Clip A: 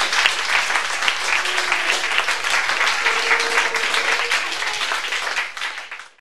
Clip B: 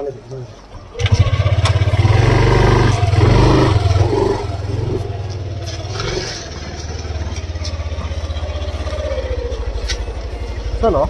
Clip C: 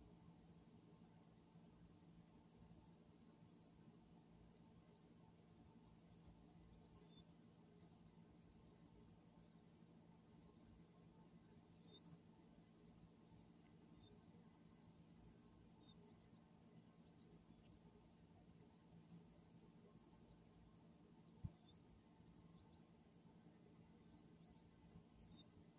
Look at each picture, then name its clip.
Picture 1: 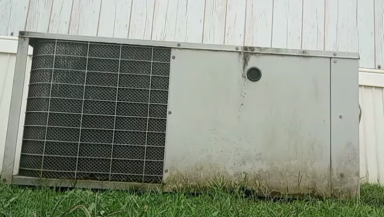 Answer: C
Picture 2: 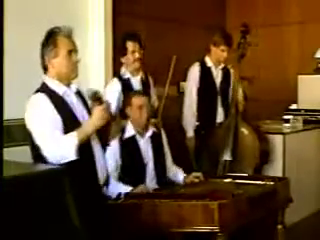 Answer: A